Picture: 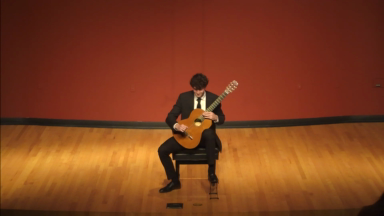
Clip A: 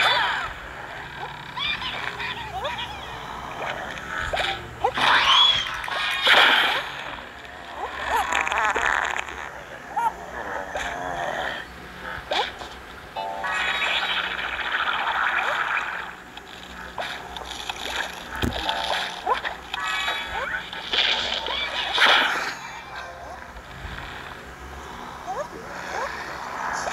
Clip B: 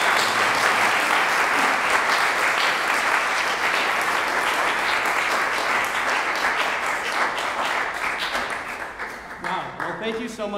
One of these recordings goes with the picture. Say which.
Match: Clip B